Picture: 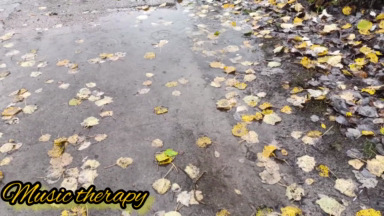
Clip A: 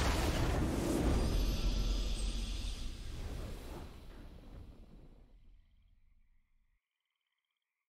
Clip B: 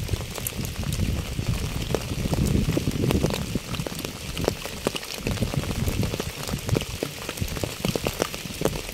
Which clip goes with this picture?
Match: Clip B